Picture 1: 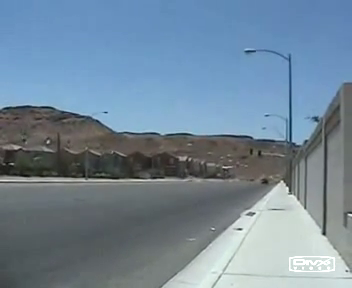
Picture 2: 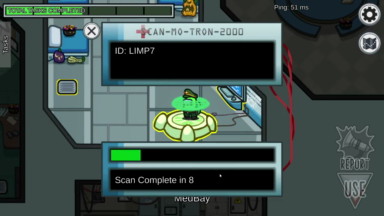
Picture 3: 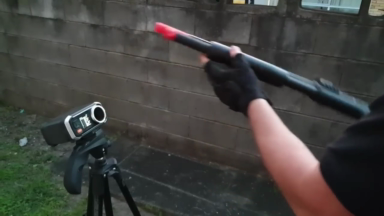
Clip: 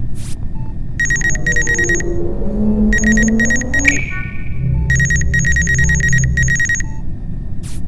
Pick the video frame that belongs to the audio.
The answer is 2